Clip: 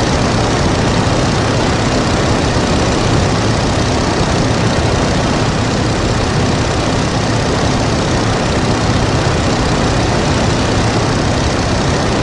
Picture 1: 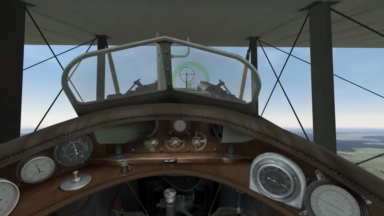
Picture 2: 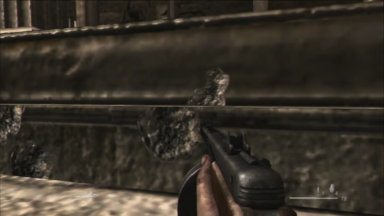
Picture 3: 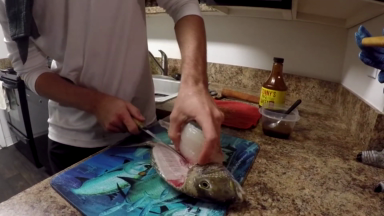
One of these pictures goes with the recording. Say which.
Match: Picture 1